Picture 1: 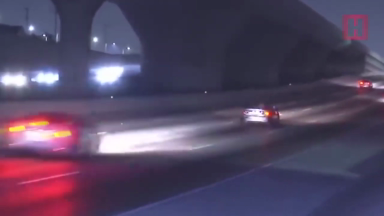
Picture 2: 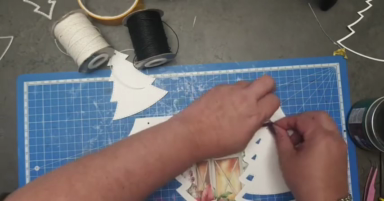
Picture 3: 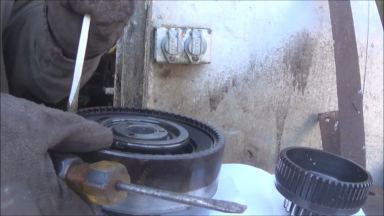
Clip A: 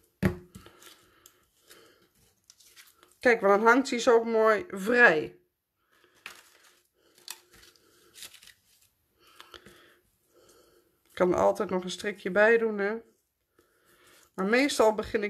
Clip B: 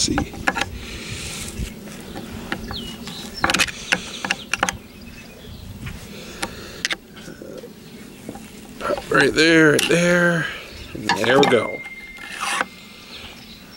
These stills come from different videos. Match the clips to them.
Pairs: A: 2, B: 3